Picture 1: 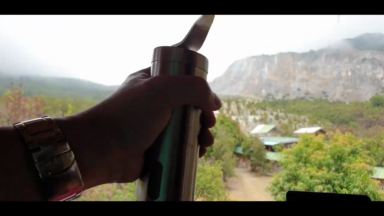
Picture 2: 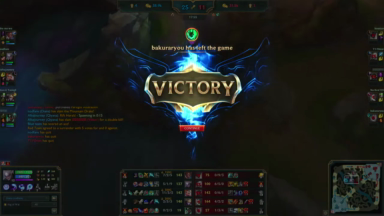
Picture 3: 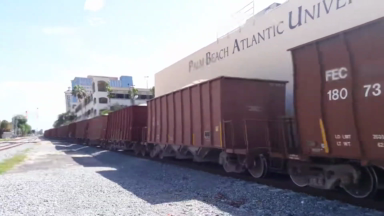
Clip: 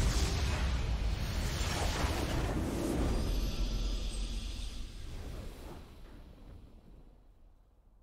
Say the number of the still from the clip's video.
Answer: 2